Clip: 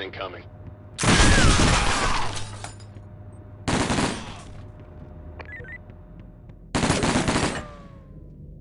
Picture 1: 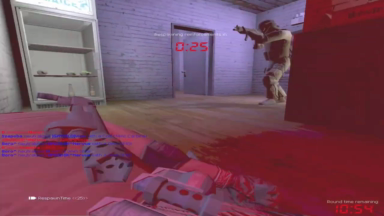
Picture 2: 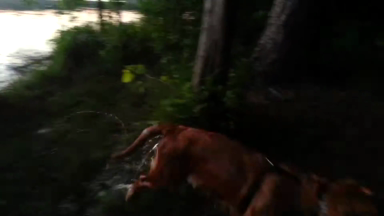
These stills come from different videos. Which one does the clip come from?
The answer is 1